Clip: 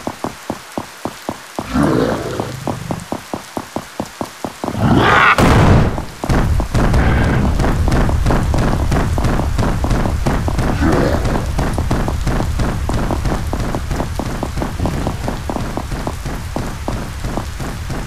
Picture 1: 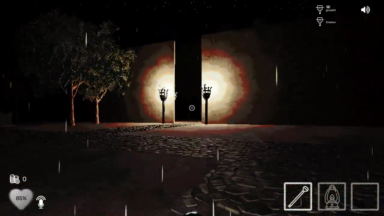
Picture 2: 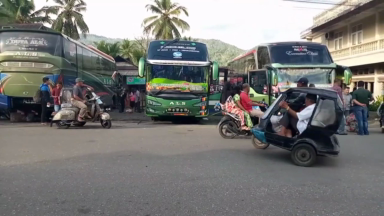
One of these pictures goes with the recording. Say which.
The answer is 1